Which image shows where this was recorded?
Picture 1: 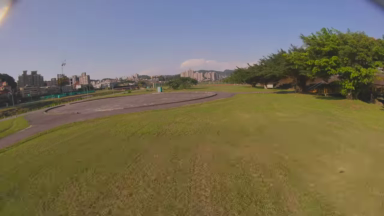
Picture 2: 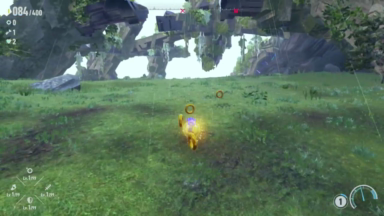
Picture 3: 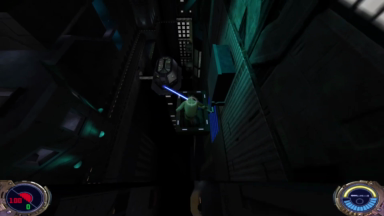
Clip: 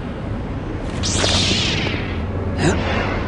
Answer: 3